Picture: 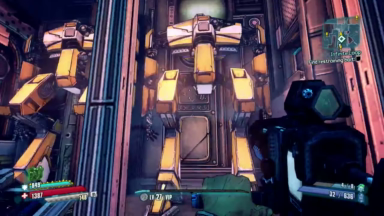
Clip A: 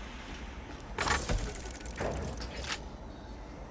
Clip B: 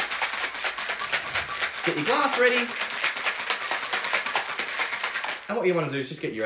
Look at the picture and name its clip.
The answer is A